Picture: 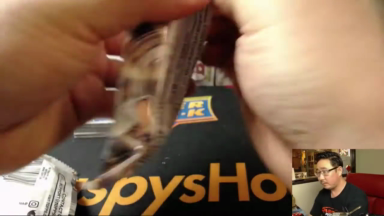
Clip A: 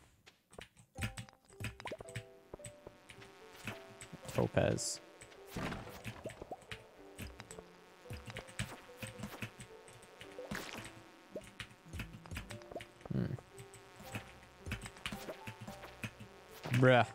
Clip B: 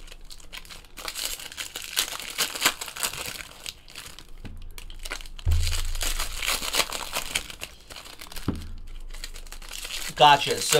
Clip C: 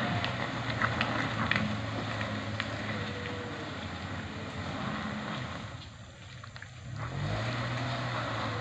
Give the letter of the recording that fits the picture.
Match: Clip B